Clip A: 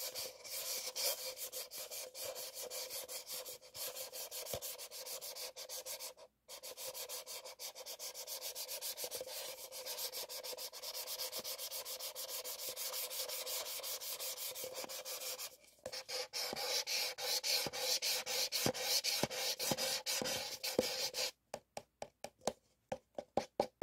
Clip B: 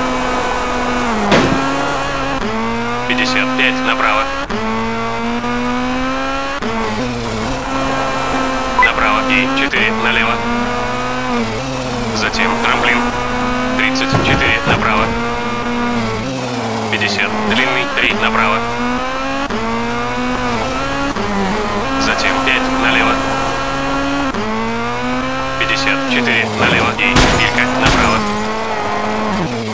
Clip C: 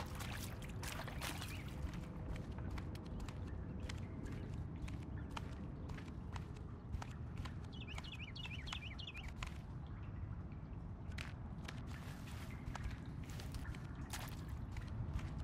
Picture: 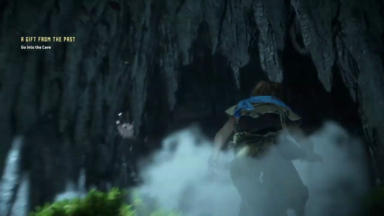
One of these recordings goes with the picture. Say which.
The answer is C